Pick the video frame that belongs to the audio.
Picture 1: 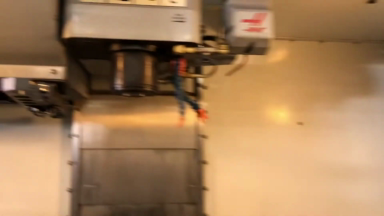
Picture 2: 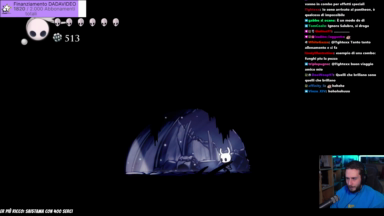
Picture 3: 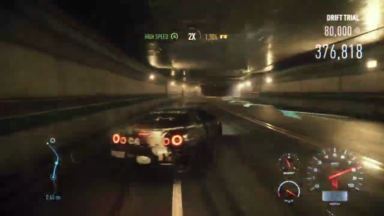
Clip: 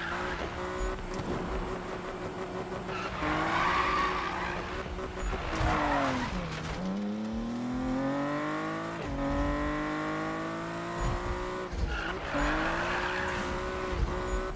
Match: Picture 3